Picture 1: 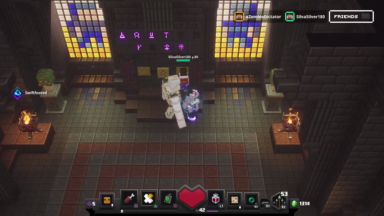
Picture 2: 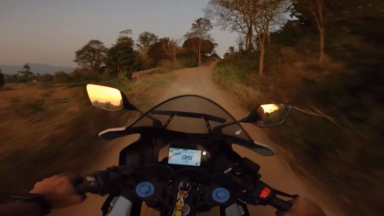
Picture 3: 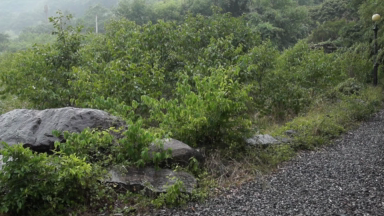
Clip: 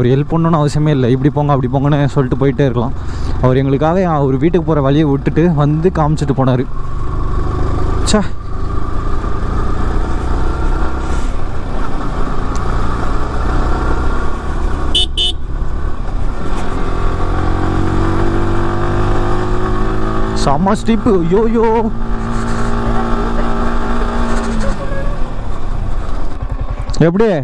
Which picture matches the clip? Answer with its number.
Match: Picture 2